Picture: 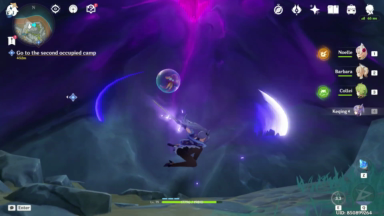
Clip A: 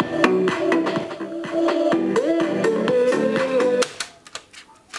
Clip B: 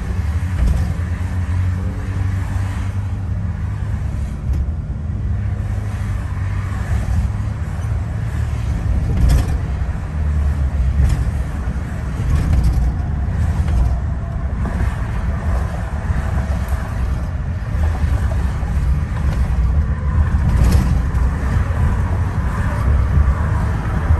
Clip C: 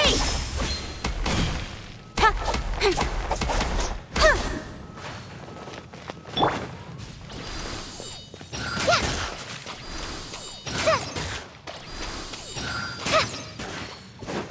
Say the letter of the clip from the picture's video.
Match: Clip C